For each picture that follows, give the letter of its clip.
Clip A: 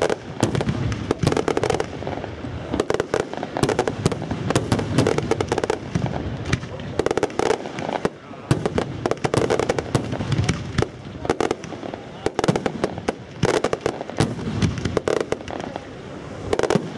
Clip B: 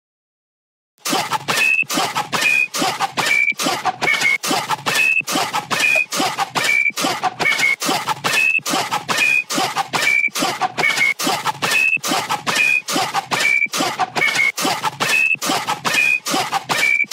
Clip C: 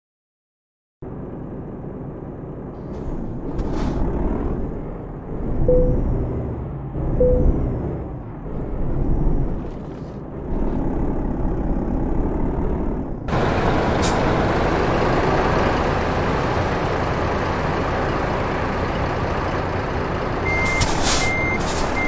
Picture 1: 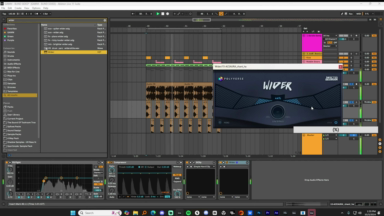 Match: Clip B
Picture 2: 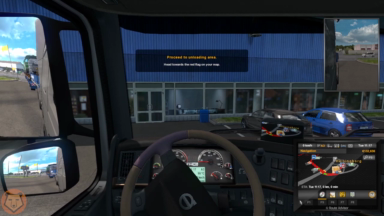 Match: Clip C